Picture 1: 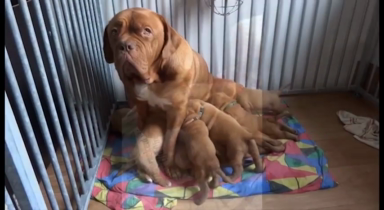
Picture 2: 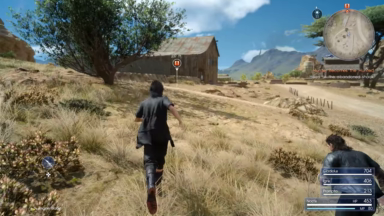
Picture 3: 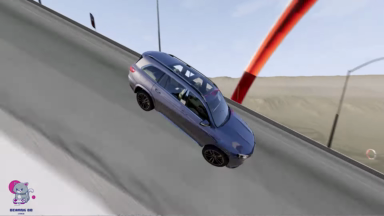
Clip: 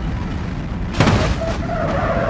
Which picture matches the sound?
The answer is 3